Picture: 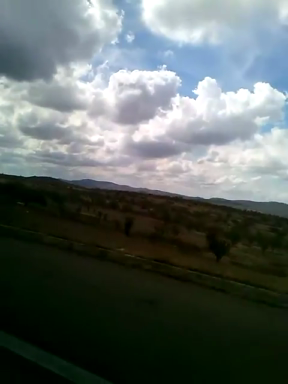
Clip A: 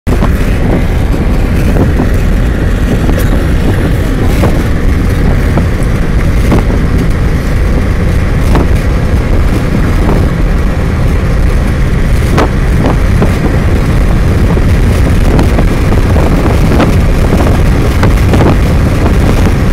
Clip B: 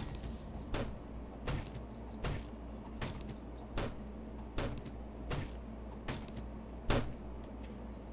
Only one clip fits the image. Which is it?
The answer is A